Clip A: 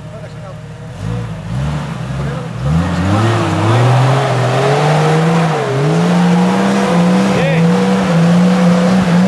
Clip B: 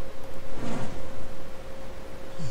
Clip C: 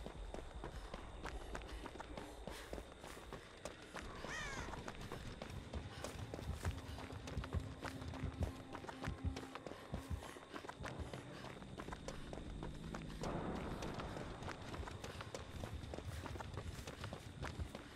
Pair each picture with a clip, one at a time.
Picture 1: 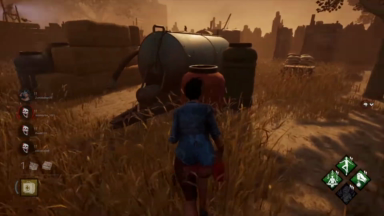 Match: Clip C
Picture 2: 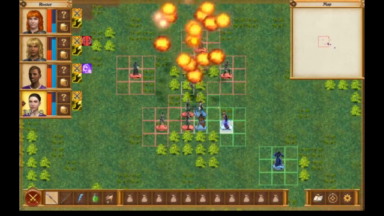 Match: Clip B